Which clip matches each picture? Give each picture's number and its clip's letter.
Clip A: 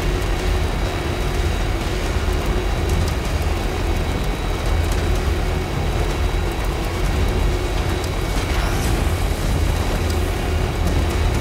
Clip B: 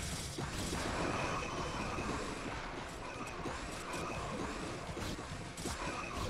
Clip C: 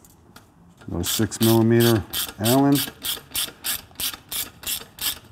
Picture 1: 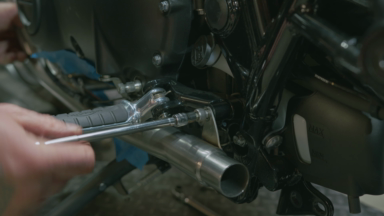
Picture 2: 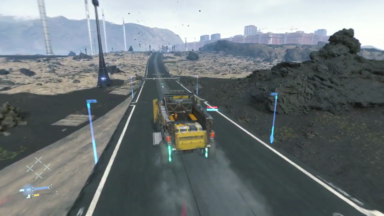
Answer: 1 C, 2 A